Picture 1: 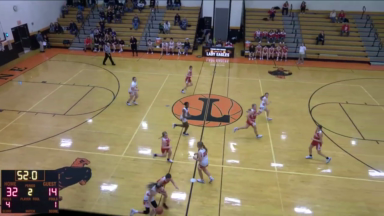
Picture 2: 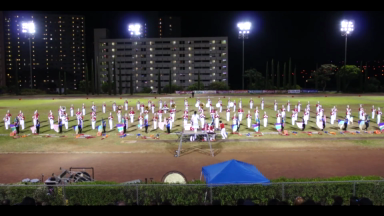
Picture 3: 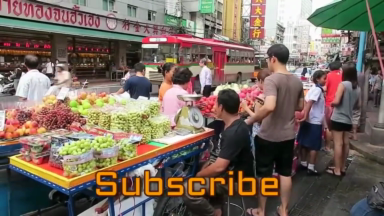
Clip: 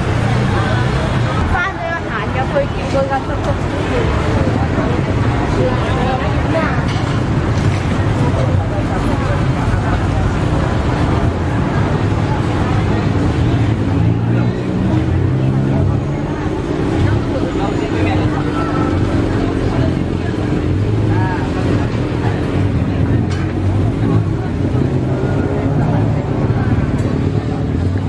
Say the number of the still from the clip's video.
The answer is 3